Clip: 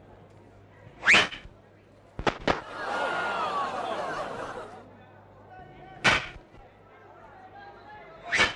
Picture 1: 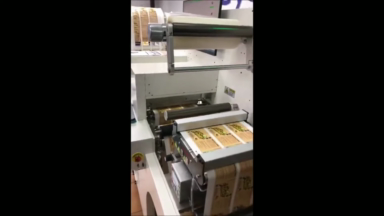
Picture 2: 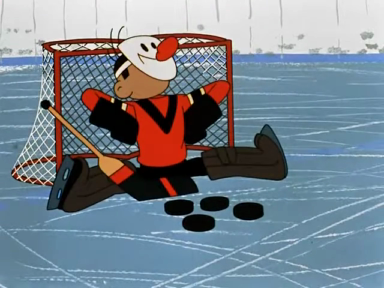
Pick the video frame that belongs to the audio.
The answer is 2